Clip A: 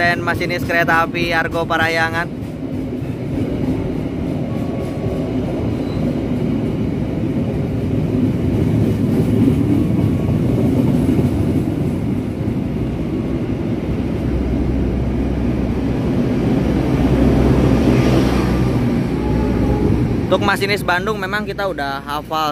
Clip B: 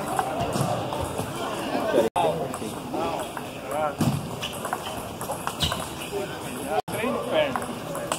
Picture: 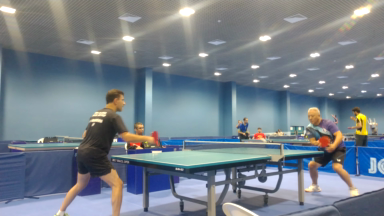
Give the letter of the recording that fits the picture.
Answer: B